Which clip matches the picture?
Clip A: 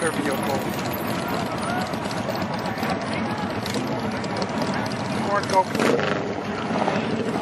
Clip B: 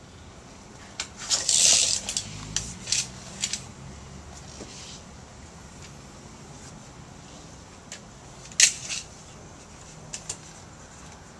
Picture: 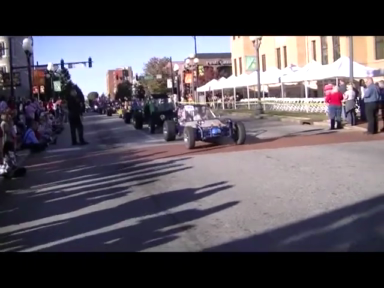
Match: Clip A